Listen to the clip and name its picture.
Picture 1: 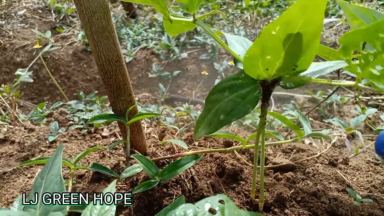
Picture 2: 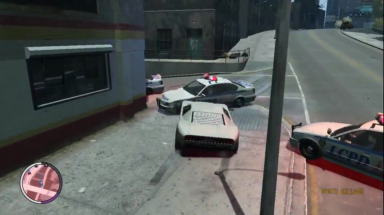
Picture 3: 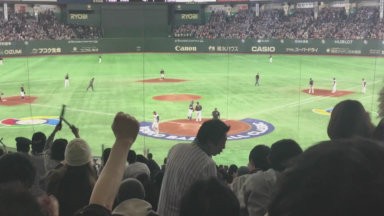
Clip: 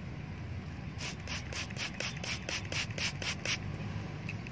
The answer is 1